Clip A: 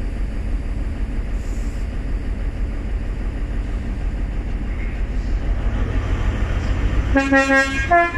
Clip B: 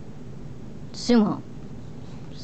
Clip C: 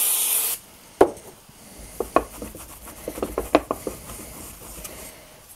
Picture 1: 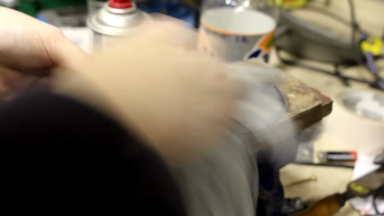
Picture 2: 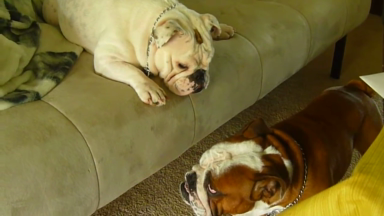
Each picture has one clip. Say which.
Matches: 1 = C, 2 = B